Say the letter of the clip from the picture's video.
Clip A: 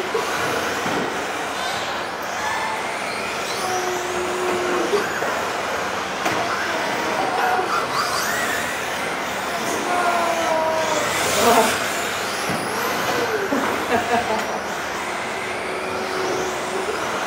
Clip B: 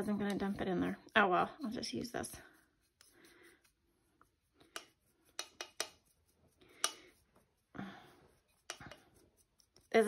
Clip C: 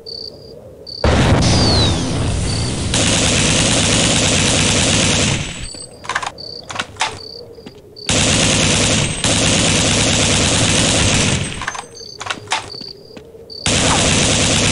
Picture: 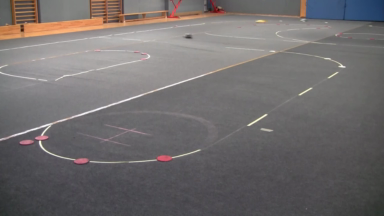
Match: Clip A